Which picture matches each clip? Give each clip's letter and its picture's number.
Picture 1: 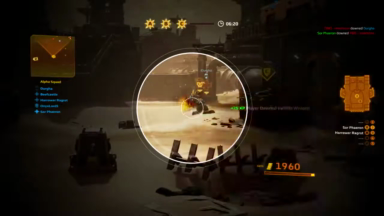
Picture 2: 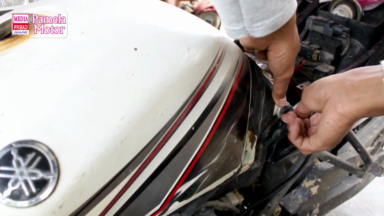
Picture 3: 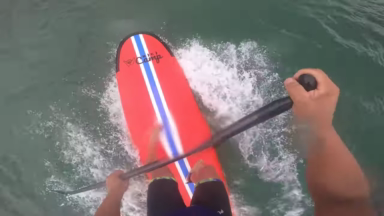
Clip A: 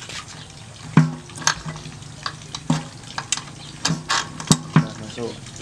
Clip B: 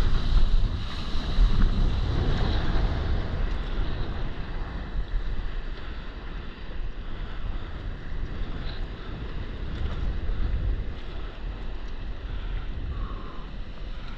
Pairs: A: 2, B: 3